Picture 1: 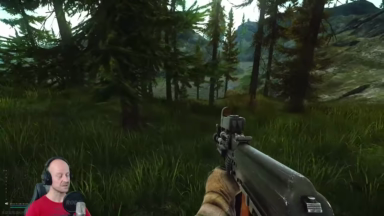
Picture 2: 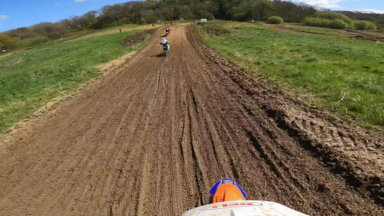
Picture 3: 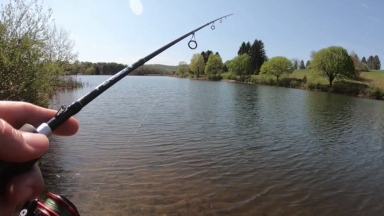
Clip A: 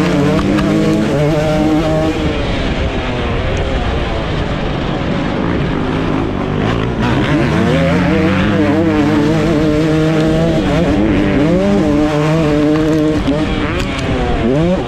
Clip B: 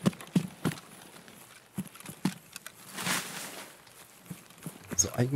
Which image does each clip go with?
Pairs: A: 2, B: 1